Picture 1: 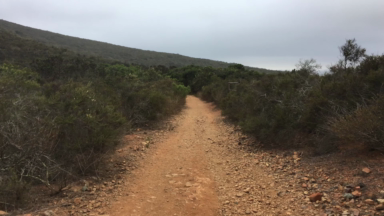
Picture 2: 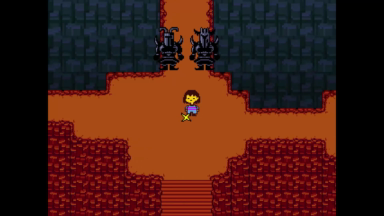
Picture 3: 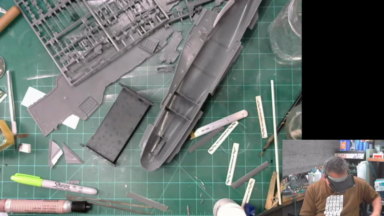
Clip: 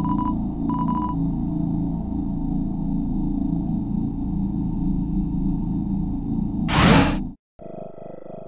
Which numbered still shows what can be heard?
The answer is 2